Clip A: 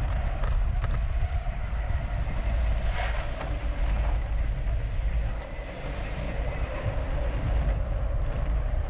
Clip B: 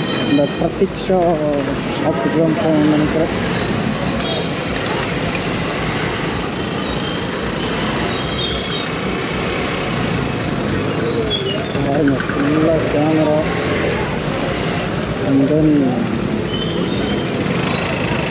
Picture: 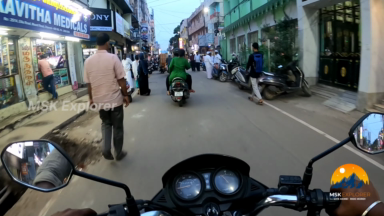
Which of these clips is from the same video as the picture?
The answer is B